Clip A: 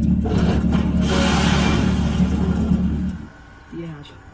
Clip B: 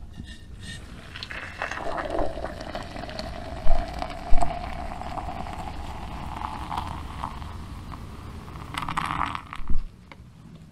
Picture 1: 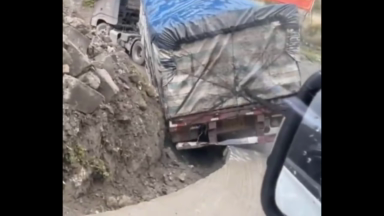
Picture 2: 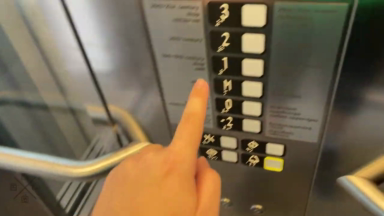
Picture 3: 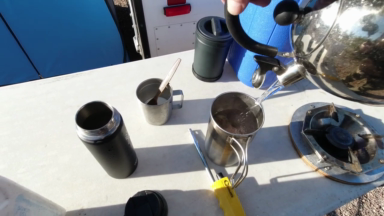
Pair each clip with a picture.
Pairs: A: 1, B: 3